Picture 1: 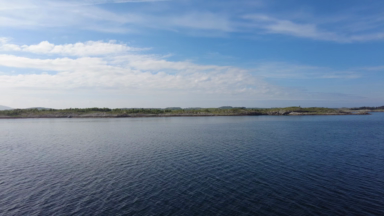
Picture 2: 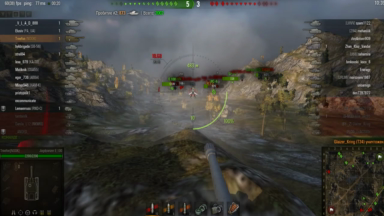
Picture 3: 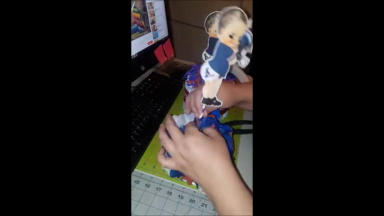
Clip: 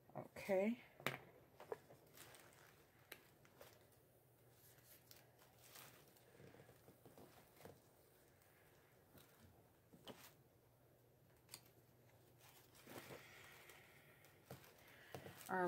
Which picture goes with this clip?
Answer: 3